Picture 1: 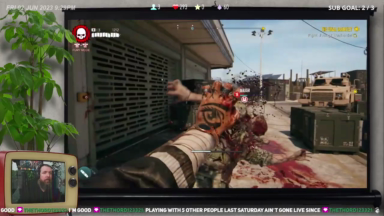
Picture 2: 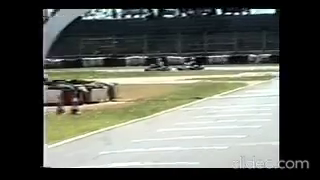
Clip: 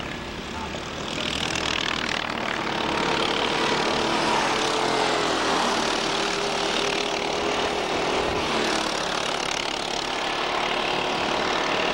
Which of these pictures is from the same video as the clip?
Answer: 2